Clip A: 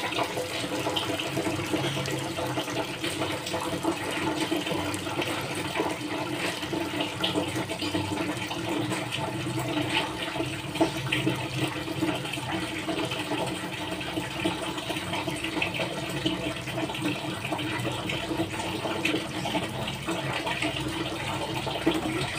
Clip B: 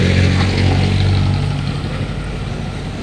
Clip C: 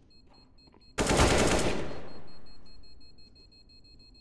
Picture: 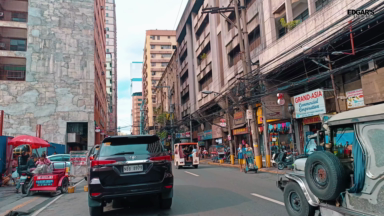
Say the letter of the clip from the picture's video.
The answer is B